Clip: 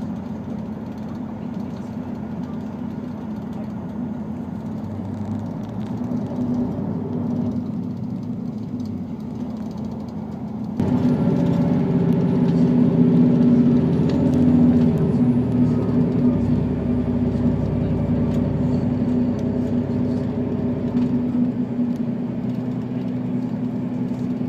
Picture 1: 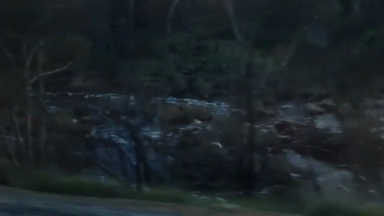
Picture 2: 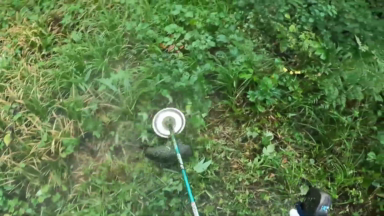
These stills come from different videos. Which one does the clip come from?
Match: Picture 1